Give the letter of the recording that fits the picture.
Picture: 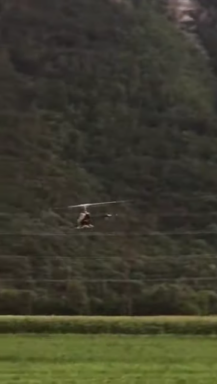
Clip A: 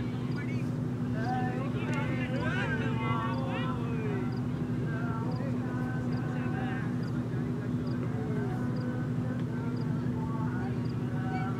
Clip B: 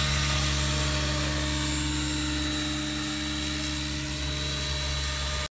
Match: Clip B